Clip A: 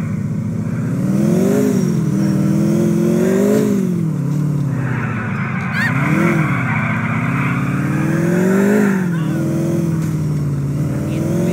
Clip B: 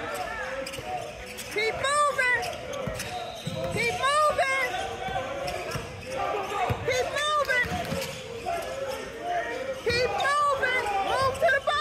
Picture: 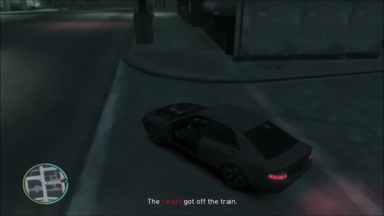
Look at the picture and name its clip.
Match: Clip A